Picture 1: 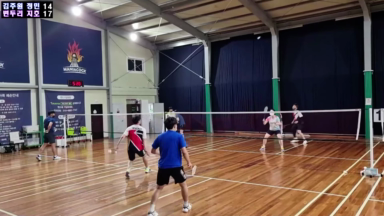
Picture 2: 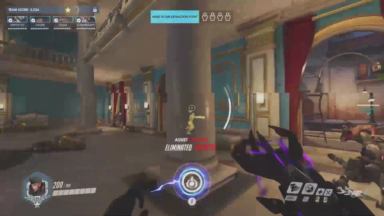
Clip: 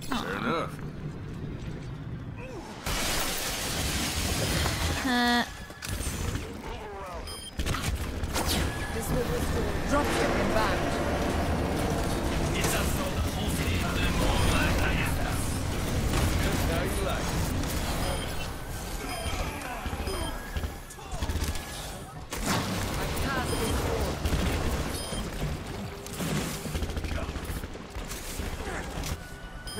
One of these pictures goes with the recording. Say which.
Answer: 2